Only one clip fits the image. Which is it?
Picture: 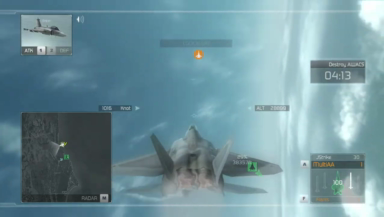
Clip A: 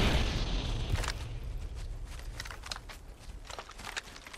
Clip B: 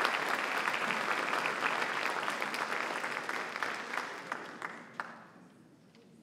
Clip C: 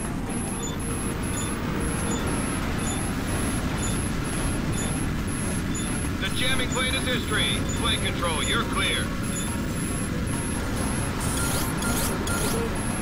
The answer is C